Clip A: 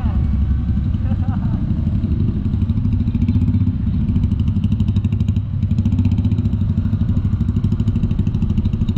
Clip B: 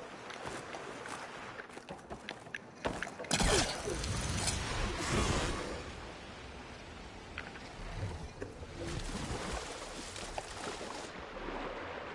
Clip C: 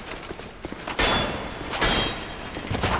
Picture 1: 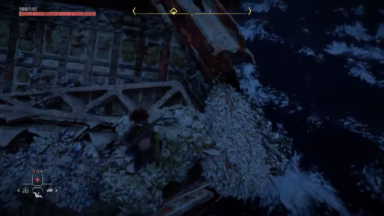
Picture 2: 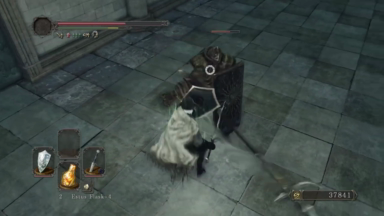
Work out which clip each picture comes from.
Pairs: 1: B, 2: C